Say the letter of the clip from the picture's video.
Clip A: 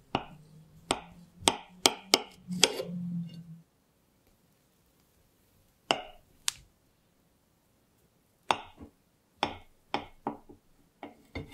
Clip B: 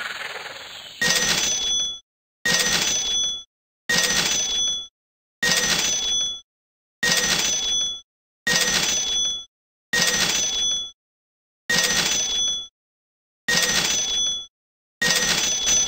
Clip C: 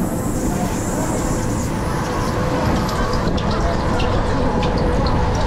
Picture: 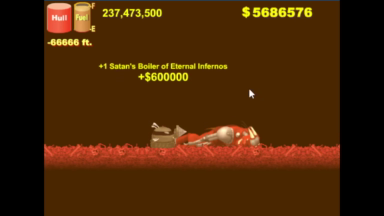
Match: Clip B